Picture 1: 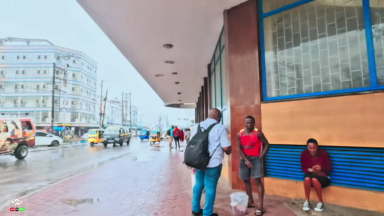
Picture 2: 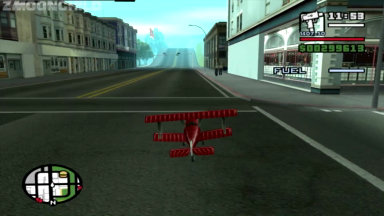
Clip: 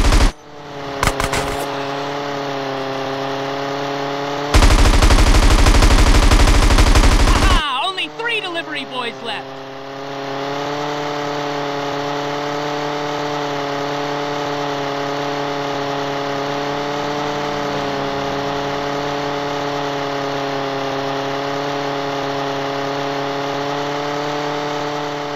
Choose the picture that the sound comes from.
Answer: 2